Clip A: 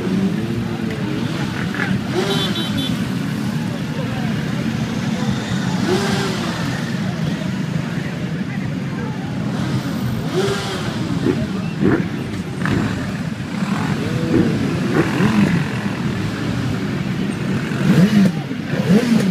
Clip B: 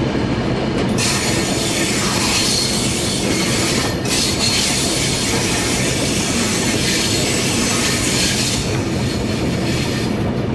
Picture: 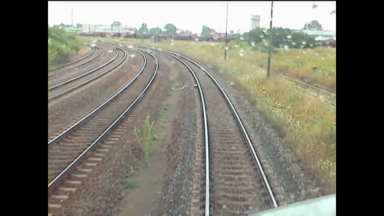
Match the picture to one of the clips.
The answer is B